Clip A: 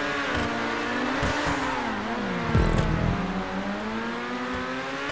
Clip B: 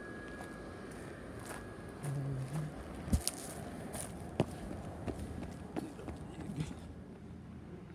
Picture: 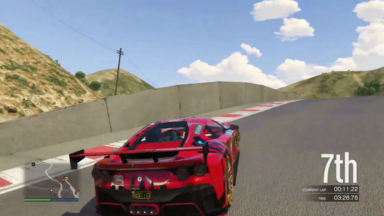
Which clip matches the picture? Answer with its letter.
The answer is A